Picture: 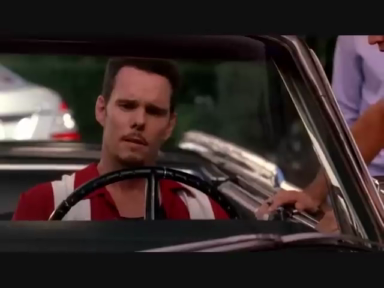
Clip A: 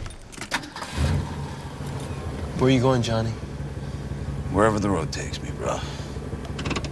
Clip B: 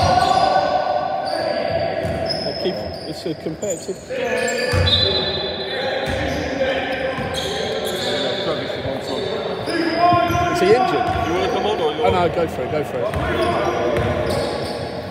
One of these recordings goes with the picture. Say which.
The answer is A